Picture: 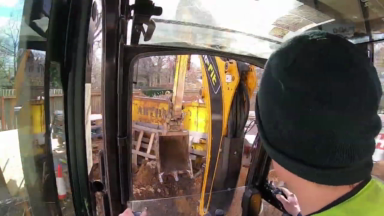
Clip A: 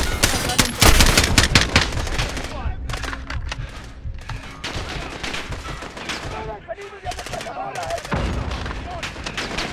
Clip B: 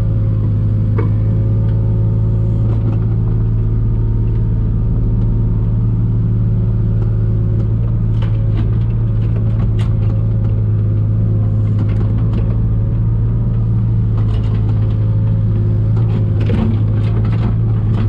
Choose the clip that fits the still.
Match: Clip B